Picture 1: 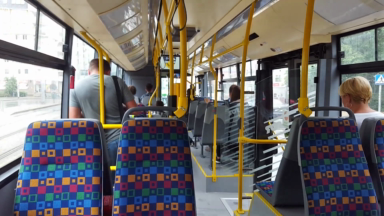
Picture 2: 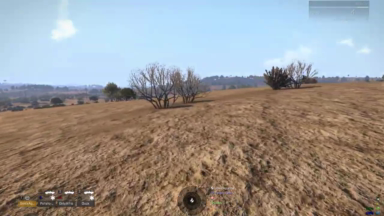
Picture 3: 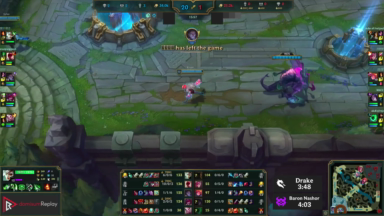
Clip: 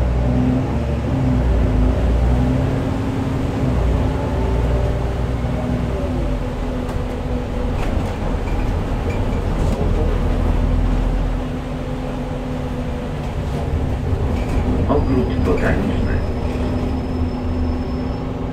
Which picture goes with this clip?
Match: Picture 1